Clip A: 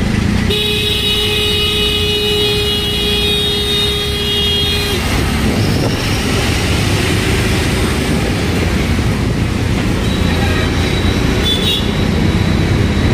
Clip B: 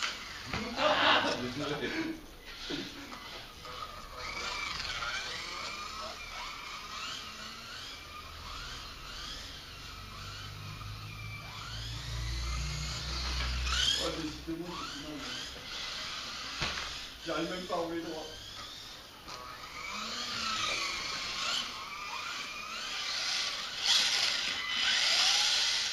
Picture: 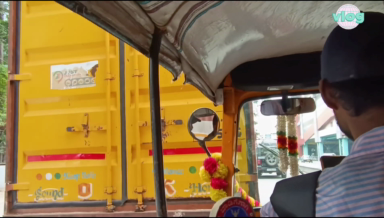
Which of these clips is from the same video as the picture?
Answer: A